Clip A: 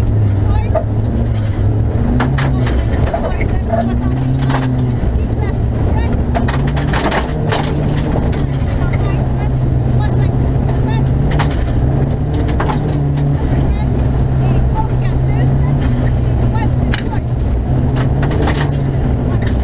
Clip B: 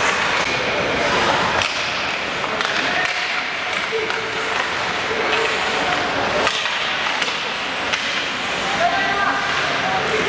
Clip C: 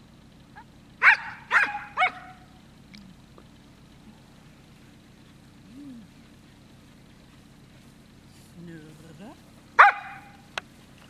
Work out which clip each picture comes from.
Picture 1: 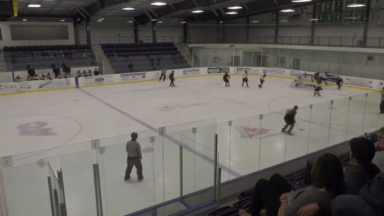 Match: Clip B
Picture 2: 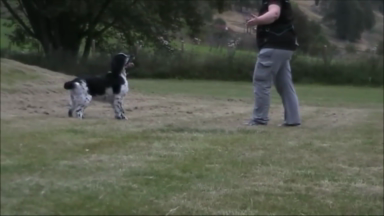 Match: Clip C